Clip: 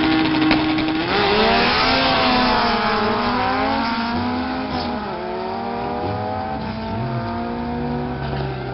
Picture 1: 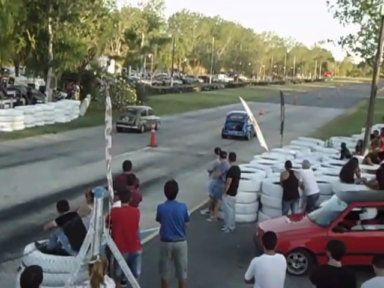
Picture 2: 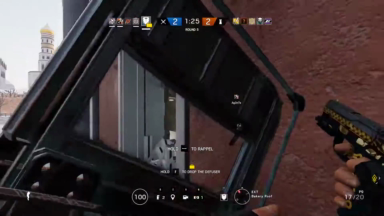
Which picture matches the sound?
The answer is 1